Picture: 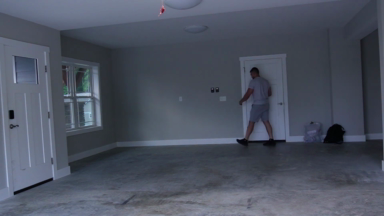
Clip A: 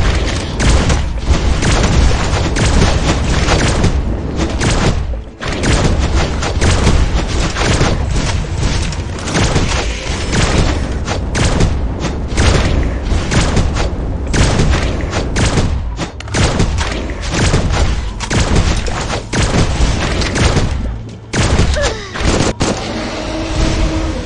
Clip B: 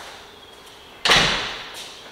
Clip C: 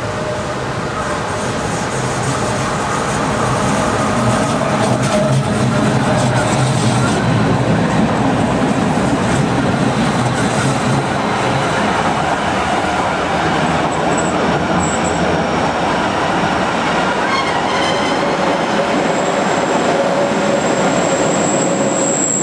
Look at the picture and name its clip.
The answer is B